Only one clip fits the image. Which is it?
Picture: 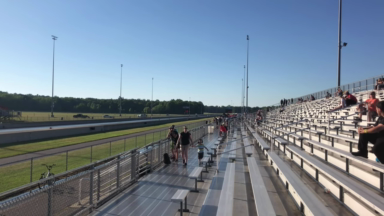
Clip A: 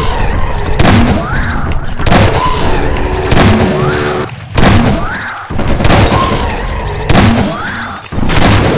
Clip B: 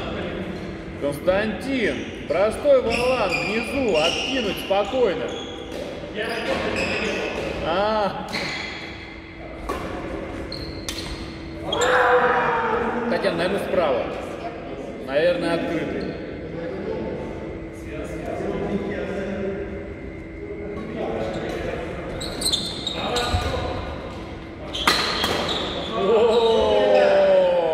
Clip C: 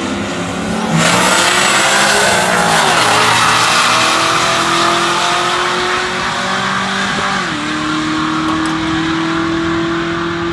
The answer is C